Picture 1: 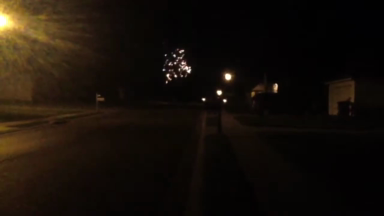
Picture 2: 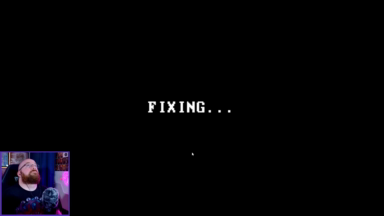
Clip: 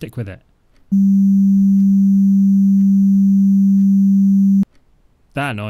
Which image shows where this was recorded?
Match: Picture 2